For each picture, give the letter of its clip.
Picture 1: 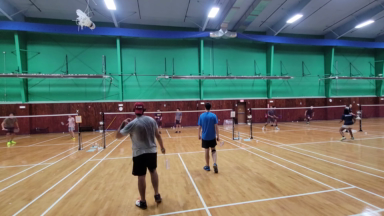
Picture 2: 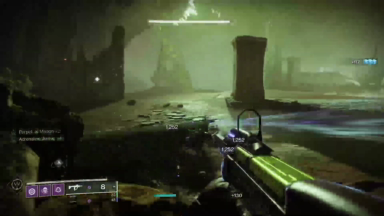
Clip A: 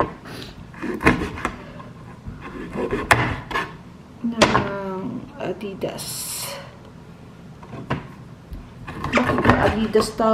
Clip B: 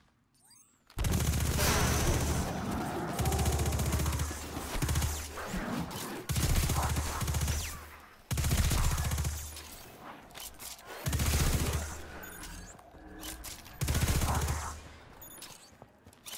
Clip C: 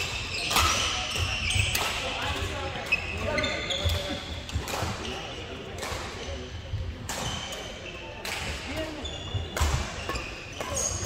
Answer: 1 C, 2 B